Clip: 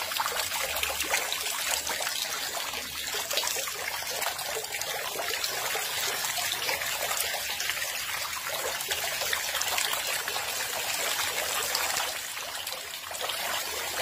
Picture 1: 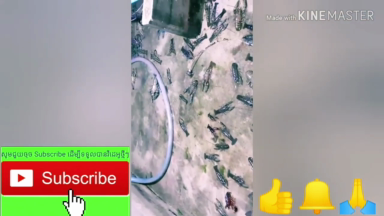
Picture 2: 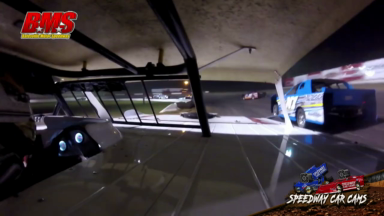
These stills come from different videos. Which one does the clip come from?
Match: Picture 1